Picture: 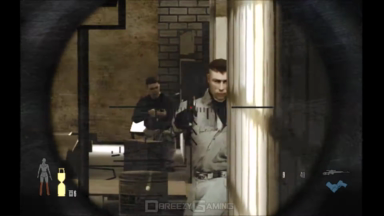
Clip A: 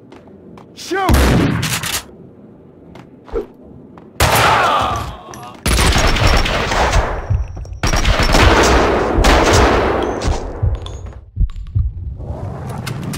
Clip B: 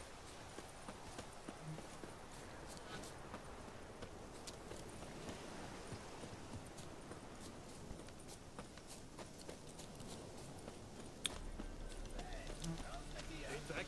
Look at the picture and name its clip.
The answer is A